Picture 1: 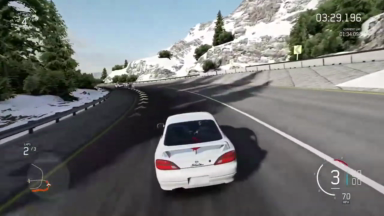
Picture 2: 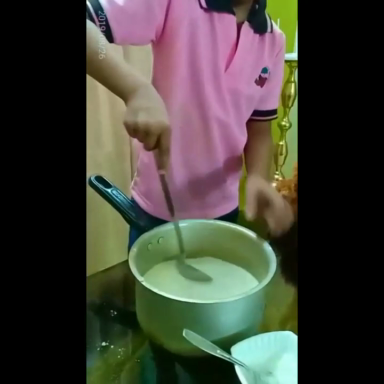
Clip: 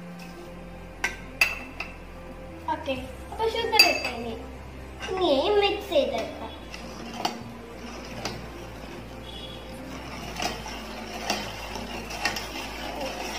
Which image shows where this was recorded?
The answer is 2